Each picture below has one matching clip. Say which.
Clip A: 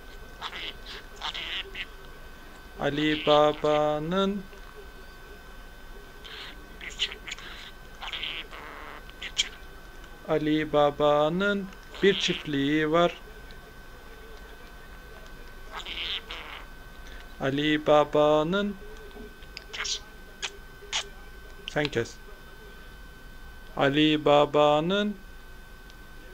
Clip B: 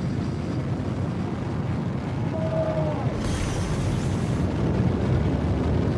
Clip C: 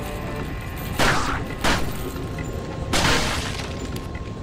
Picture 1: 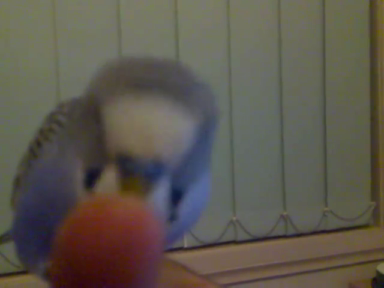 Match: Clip A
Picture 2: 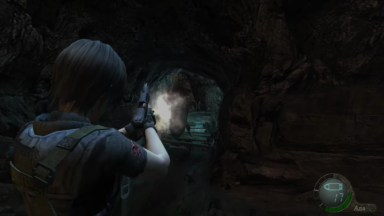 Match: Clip C